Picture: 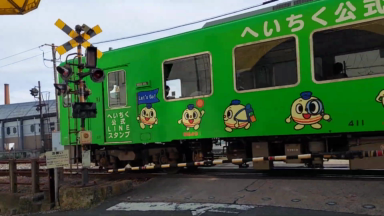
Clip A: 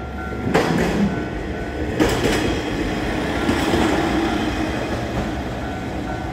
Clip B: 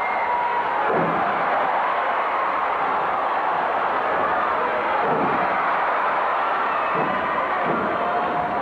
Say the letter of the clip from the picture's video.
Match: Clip A